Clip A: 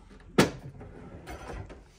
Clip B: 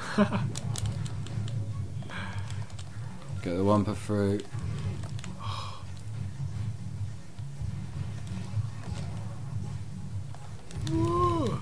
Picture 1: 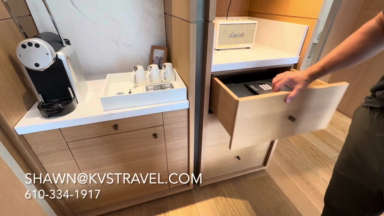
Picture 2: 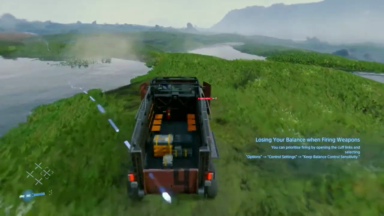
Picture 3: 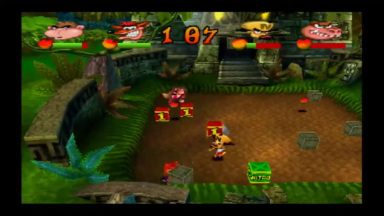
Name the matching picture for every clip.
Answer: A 1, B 3